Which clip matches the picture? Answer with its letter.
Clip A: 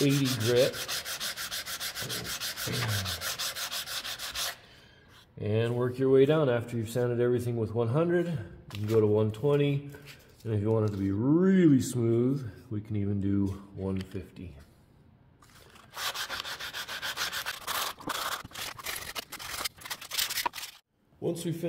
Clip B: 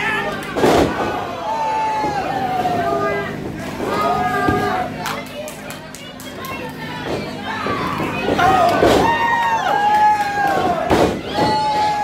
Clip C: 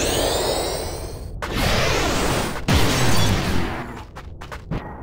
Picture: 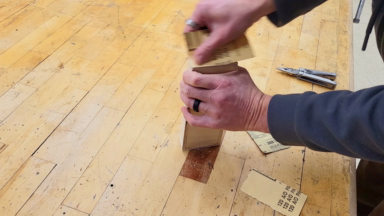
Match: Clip A